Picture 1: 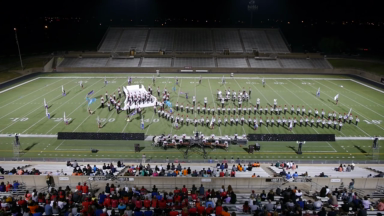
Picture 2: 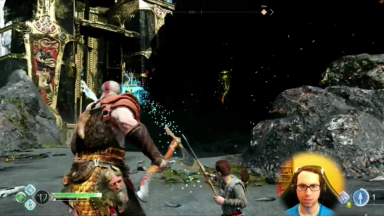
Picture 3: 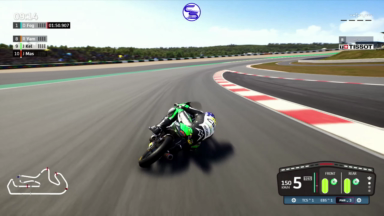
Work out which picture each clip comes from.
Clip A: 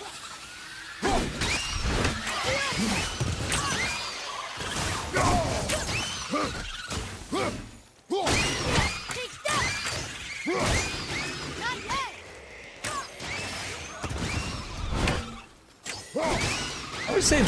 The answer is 2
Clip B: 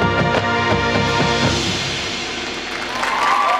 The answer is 1